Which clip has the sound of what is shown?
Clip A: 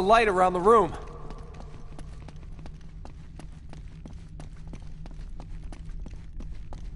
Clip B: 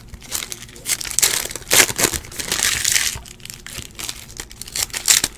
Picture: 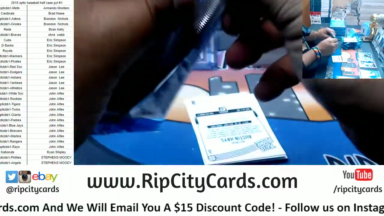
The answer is B